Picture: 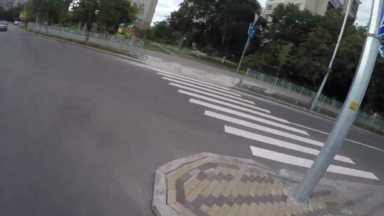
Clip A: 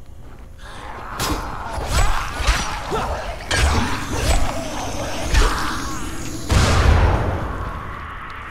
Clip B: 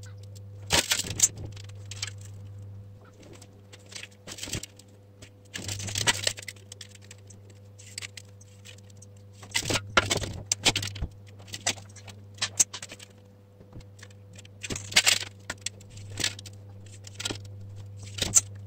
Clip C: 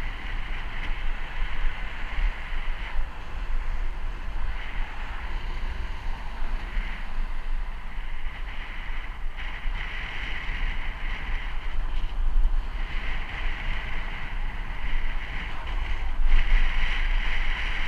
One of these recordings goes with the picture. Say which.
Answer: C